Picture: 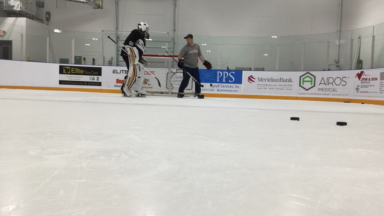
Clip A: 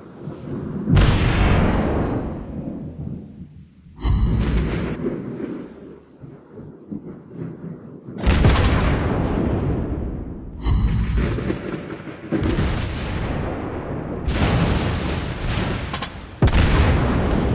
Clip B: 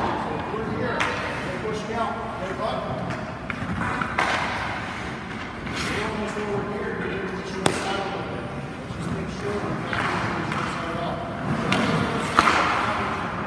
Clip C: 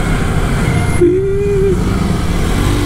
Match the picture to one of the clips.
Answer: B